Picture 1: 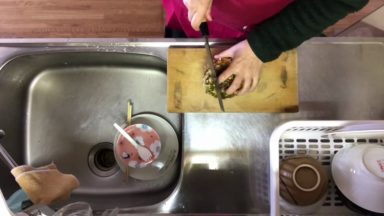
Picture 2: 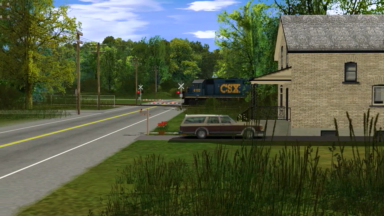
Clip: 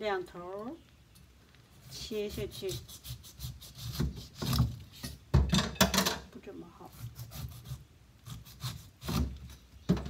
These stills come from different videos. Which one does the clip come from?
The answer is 1